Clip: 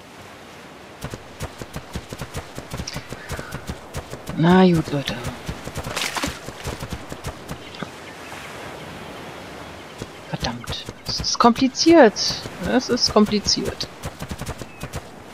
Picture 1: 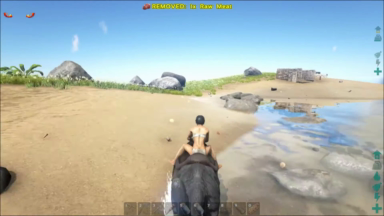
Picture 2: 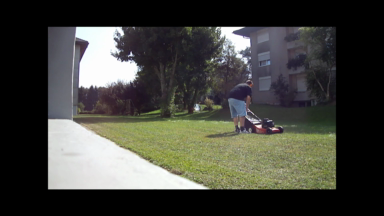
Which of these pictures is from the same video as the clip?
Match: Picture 1